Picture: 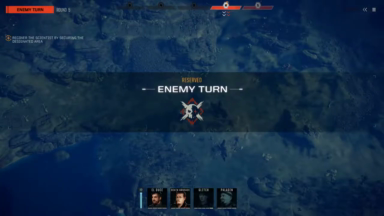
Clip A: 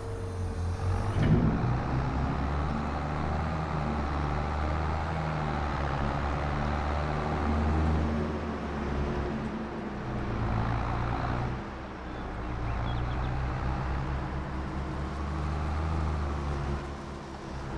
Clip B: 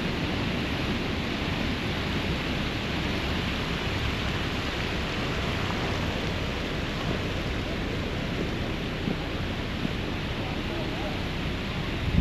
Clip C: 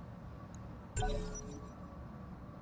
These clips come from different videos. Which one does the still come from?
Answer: C